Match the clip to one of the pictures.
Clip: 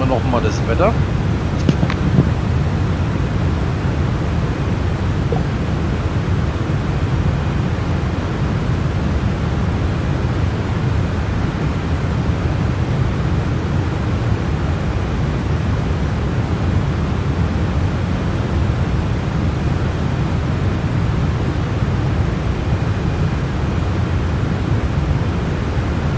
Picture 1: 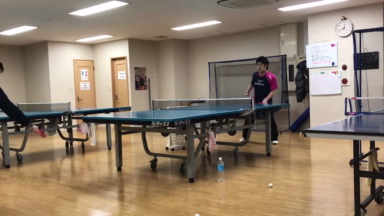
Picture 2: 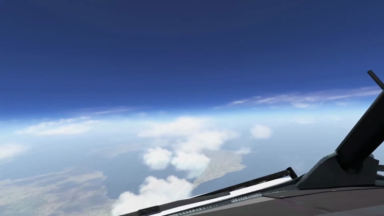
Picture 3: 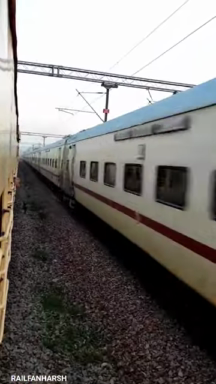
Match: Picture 2